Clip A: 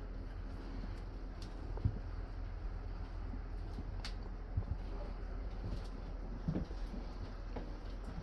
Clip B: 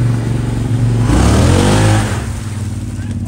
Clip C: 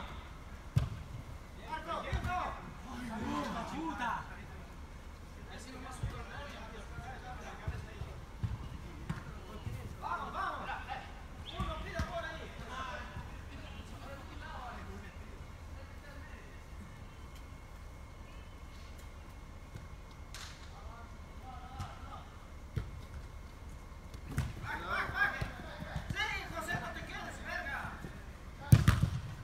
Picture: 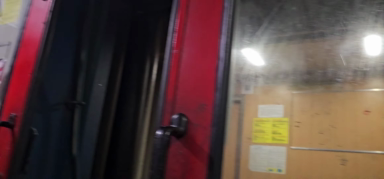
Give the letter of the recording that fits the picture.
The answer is A